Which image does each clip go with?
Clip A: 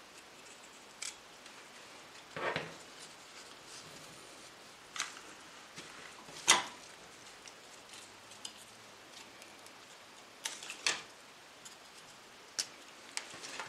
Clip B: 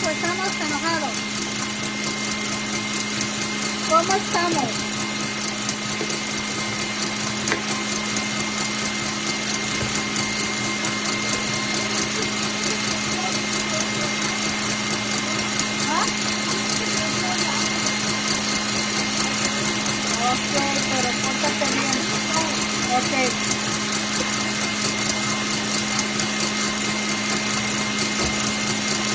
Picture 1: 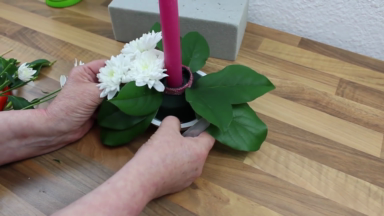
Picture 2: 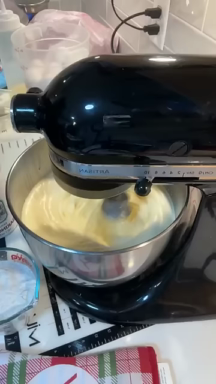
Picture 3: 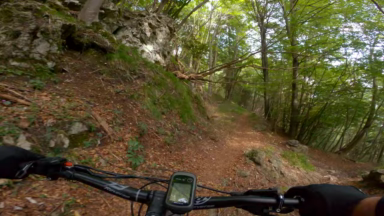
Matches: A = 1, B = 2